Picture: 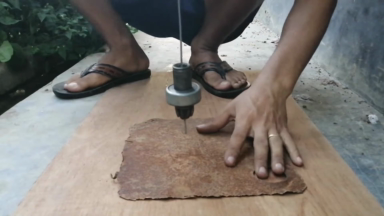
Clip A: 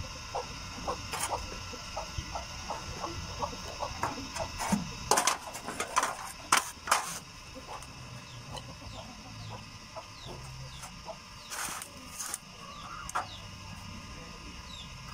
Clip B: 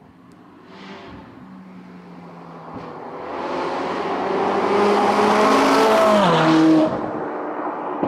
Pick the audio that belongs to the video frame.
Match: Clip A